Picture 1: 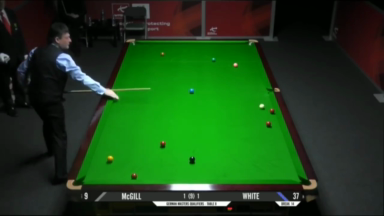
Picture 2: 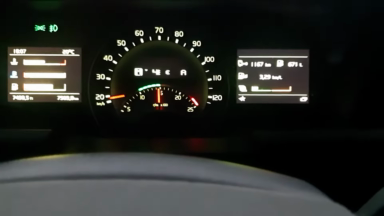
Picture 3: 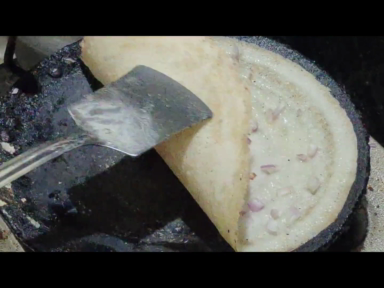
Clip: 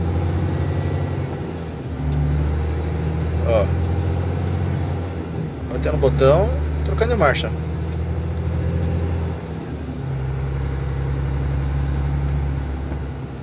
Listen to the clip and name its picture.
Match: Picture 2